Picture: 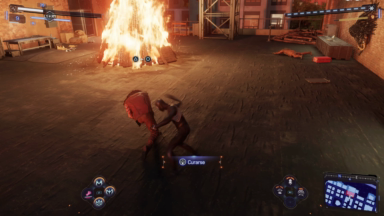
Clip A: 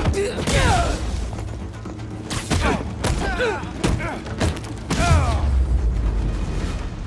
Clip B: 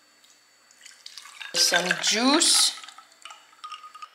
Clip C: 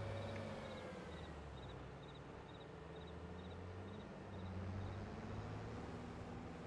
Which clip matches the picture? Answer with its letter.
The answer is A